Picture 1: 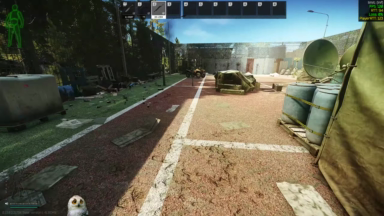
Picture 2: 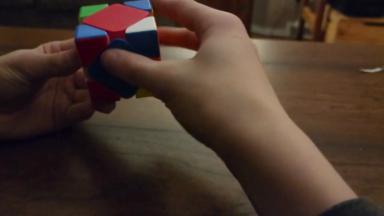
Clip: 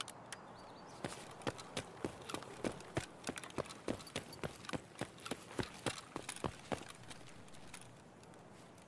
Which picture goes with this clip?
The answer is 1